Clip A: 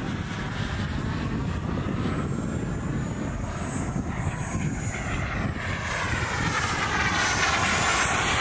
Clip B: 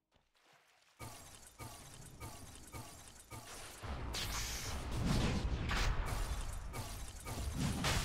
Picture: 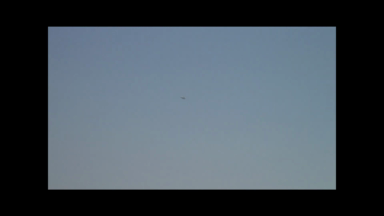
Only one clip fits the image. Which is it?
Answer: A